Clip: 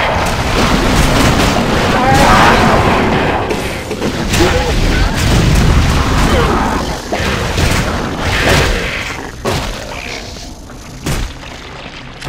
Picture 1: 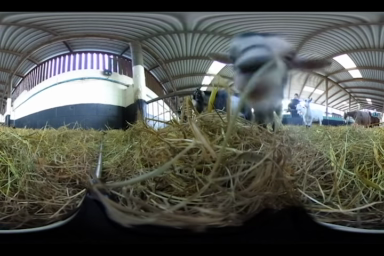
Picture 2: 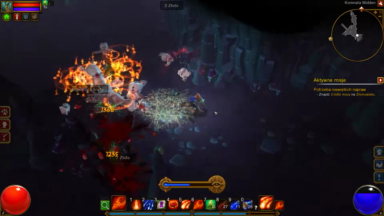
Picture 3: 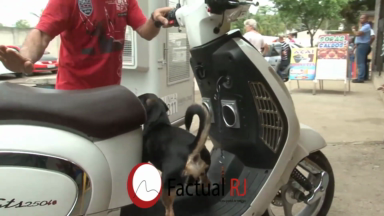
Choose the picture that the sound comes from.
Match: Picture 2